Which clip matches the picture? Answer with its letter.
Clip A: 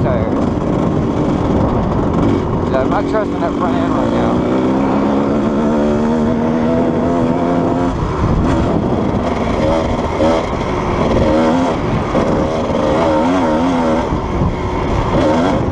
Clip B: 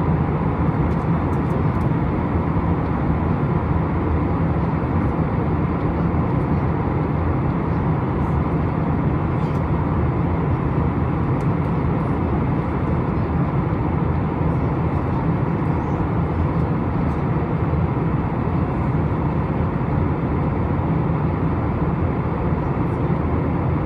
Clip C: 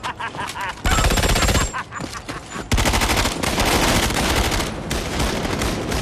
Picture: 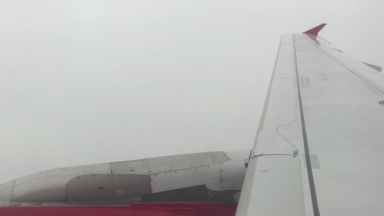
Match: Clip B